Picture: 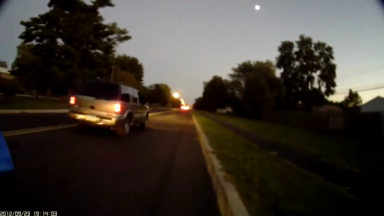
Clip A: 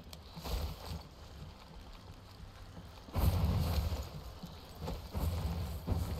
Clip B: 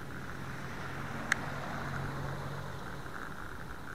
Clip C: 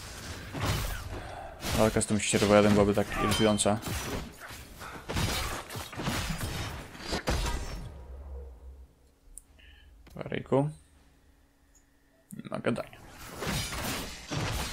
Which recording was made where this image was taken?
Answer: B